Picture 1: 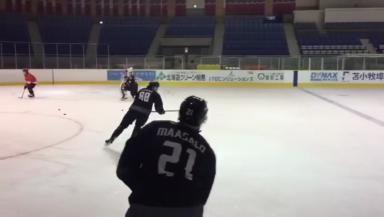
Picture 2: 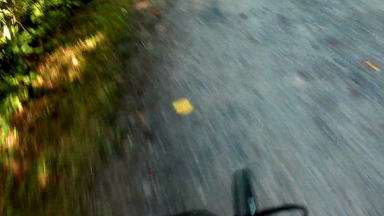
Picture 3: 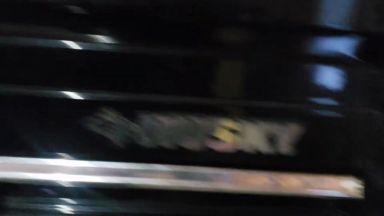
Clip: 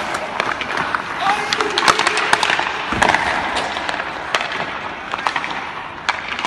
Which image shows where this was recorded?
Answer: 1